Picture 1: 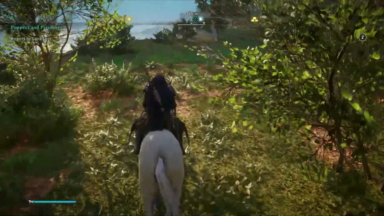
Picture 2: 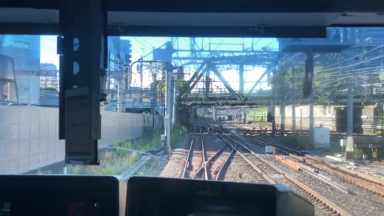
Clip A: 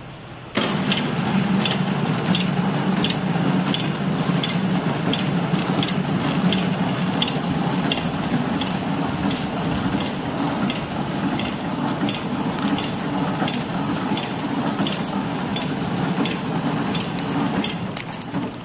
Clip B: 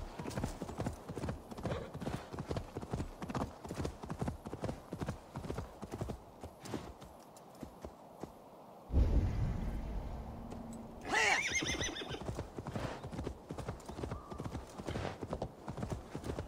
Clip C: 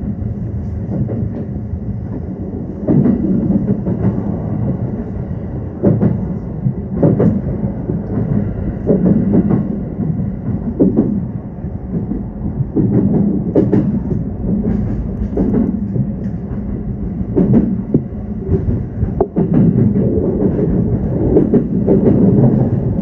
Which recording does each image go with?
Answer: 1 B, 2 C